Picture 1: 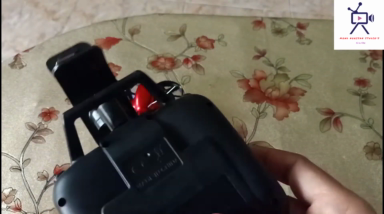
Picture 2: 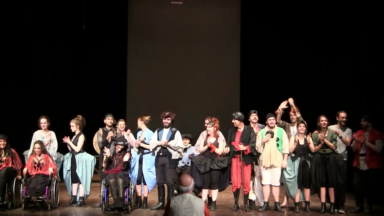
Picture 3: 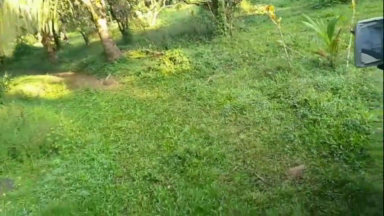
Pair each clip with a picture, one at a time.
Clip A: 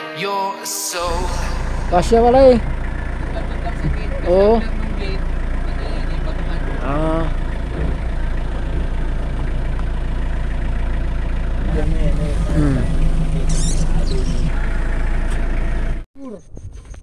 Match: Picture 3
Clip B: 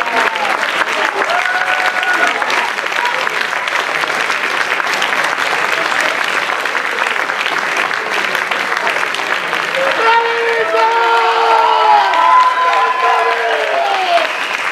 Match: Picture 2